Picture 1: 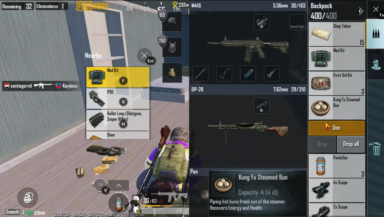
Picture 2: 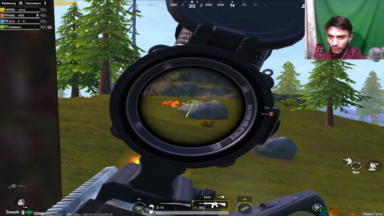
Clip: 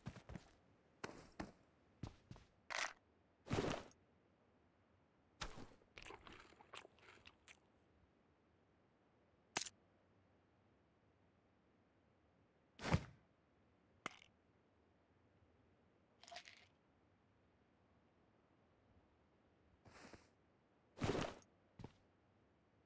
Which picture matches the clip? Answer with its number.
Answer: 1